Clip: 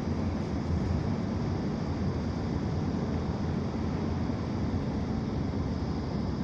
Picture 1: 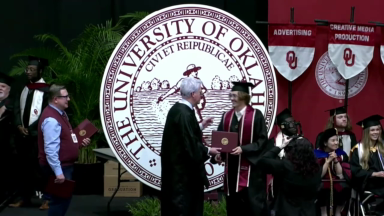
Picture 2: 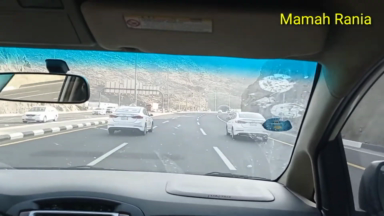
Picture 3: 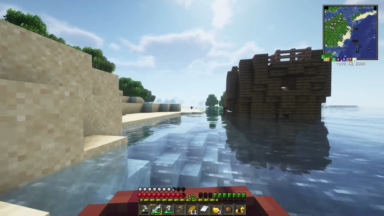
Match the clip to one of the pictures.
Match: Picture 2